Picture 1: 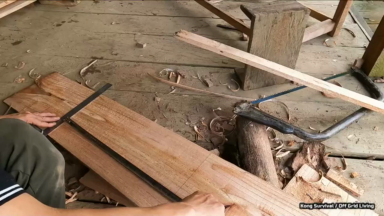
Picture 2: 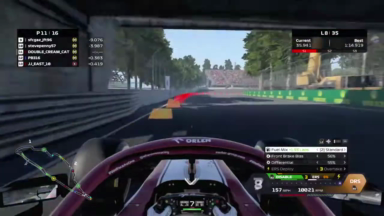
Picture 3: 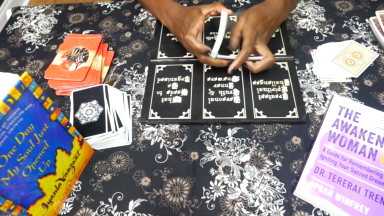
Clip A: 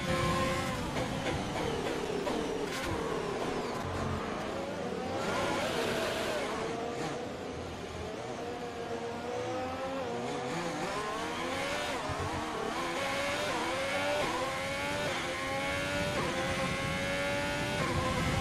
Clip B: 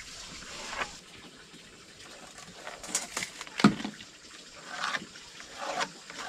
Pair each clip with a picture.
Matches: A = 2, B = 1